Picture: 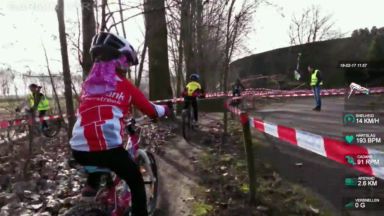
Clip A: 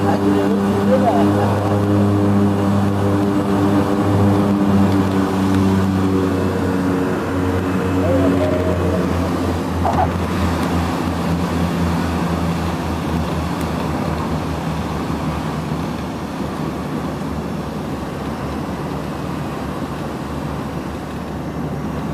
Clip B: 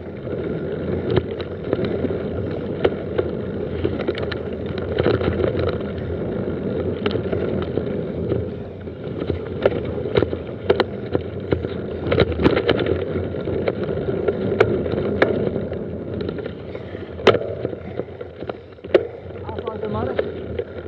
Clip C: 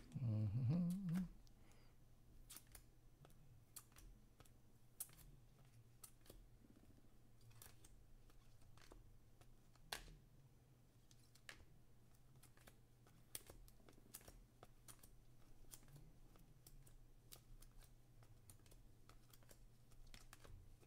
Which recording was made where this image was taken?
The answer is B